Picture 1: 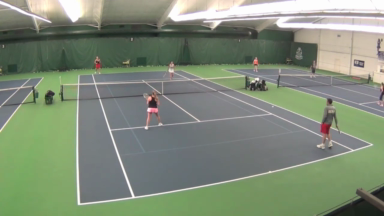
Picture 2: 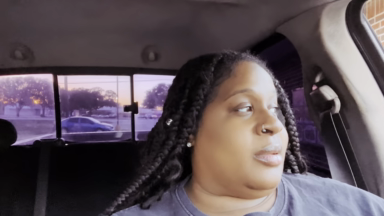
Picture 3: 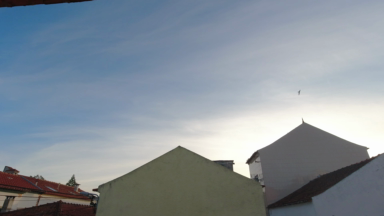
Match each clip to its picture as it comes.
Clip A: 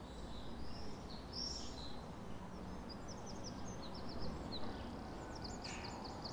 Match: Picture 3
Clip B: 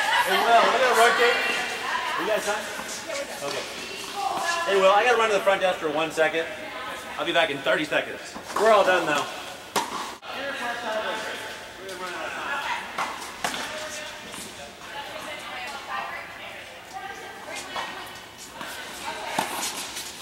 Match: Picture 1